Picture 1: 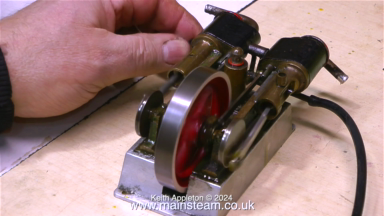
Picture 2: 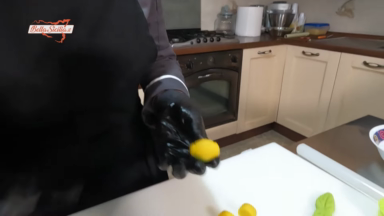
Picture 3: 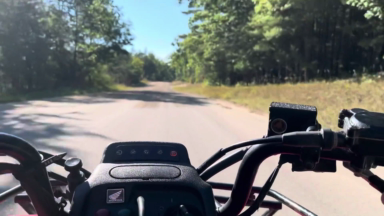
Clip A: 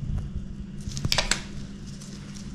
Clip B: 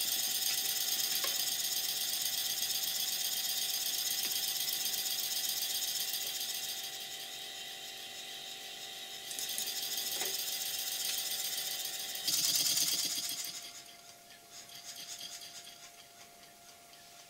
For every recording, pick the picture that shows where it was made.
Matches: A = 2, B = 1